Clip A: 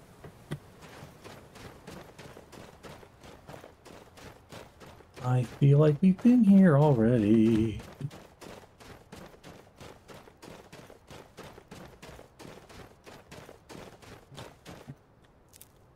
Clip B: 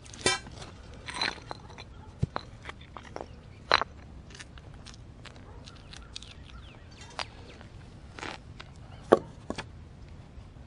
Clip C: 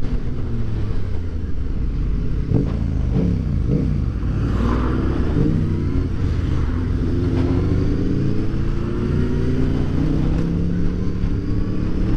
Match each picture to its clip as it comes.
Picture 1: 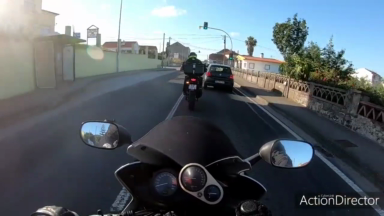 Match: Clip C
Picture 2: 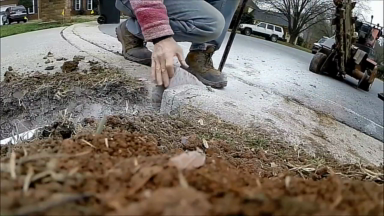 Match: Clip B